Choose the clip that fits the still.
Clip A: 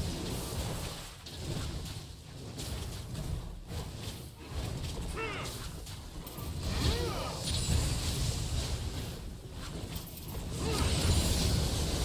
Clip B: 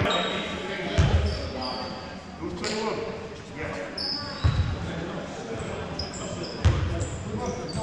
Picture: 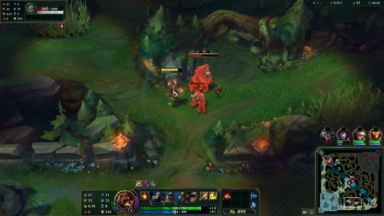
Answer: A